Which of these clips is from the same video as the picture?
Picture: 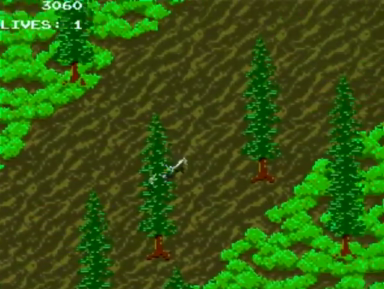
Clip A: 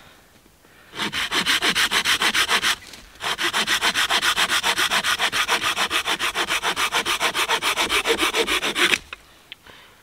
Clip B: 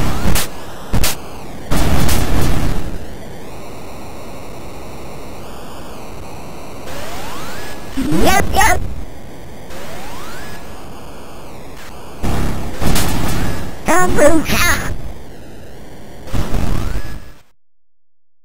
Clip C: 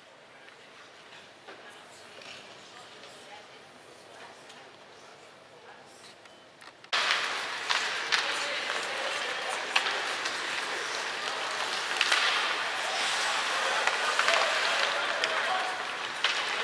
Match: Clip B